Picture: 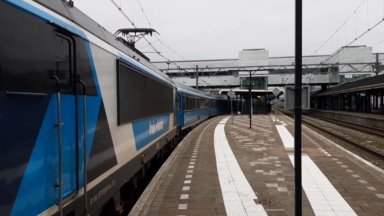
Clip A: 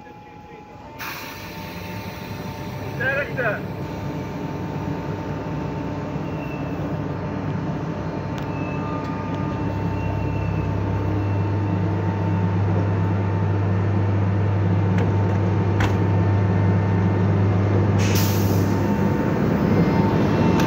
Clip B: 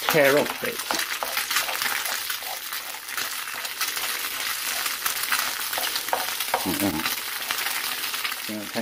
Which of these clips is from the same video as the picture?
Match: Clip A